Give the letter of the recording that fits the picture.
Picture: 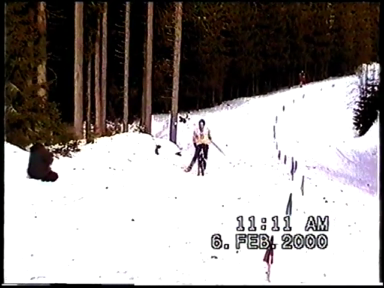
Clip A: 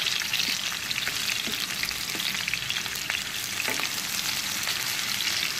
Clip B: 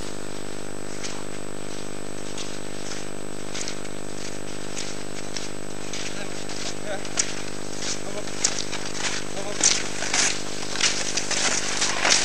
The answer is B